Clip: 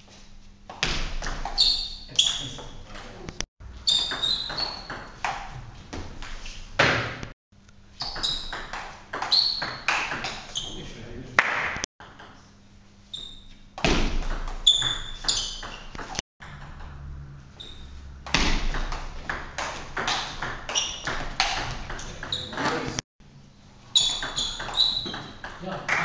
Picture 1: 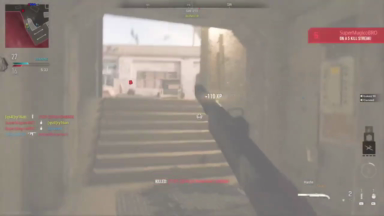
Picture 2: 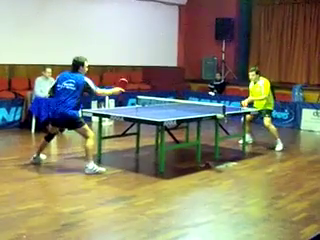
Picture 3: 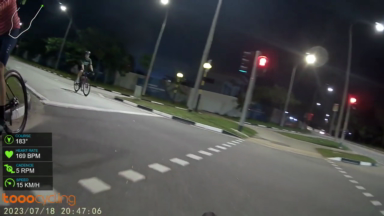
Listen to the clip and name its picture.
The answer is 2